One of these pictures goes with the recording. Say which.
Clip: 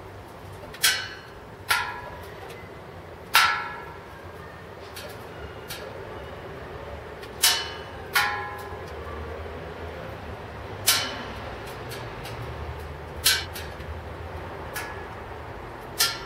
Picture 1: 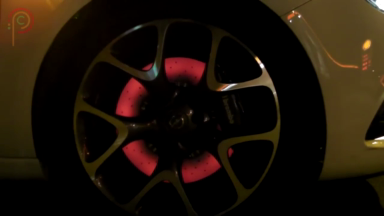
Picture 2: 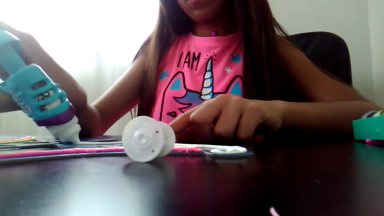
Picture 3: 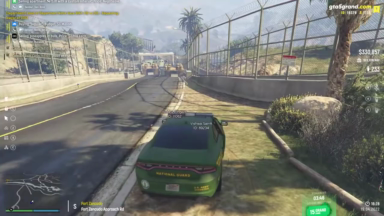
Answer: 1